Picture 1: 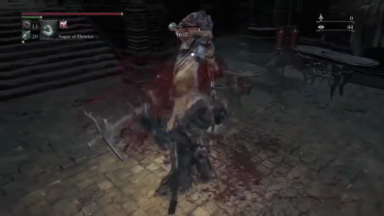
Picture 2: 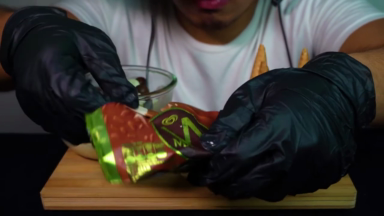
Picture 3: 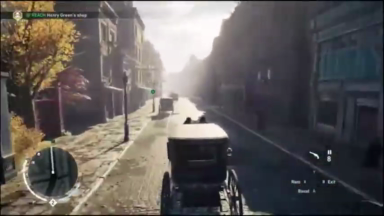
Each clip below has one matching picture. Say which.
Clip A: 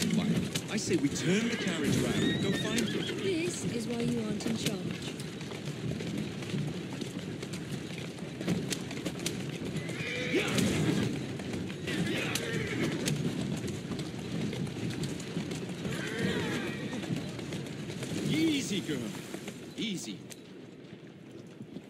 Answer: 3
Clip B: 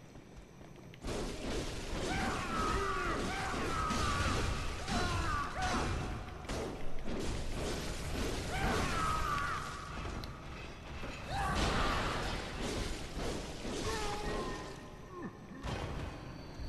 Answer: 1